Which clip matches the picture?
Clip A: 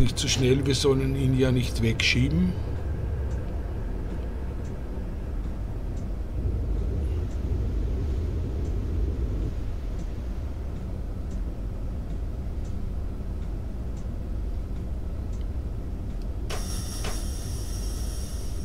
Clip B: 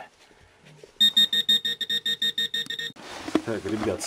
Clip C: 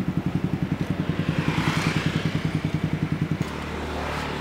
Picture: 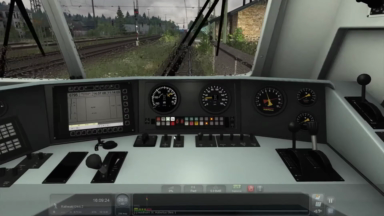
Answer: A